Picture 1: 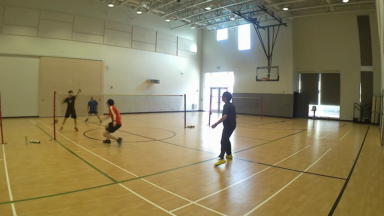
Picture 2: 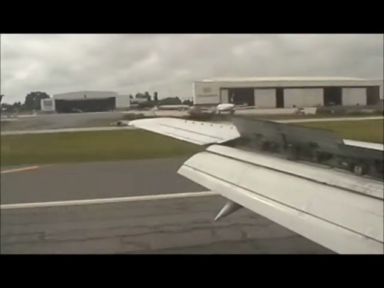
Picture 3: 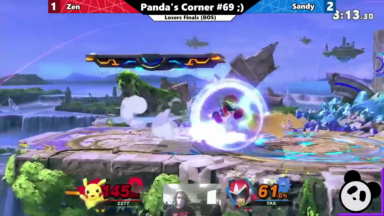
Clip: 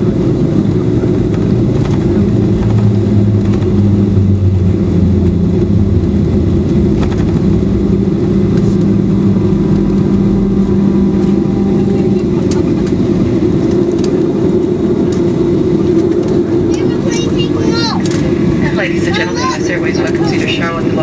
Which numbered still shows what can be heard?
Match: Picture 2